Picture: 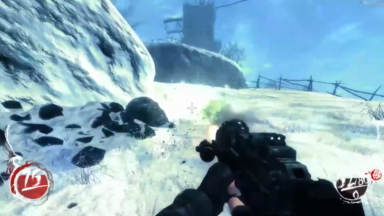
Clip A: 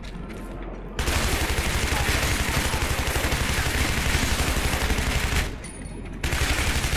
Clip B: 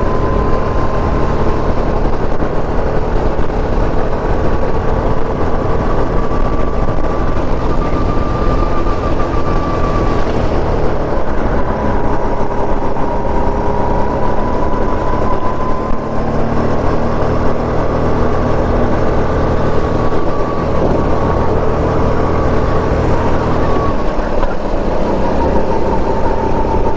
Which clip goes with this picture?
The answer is A